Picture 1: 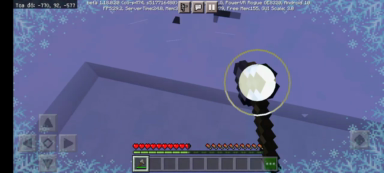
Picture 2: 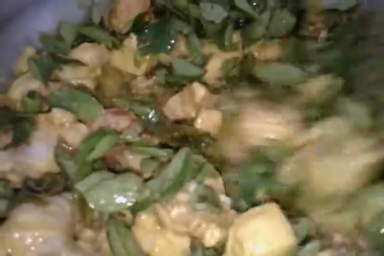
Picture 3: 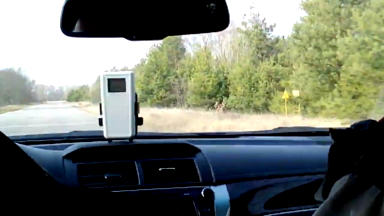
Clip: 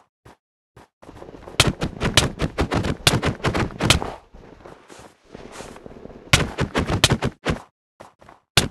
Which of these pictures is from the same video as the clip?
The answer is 1